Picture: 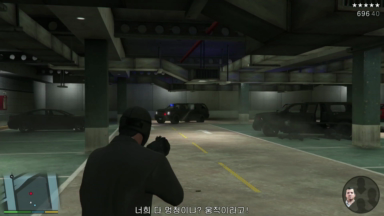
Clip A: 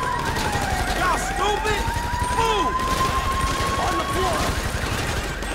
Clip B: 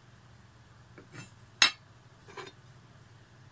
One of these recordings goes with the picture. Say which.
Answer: A